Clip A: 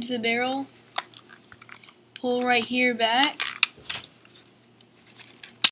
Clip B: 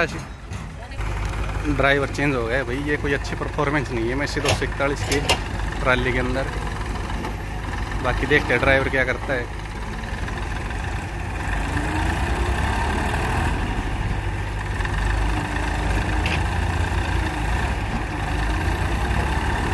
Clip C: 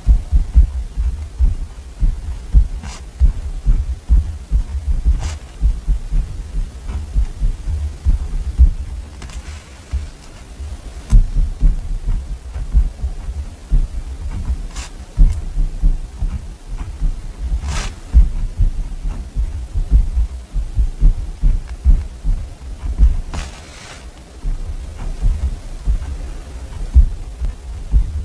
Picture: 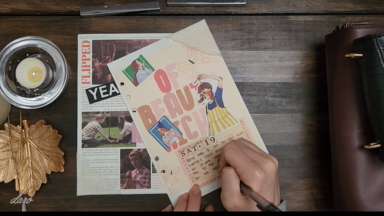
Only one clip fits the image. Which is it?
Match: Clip C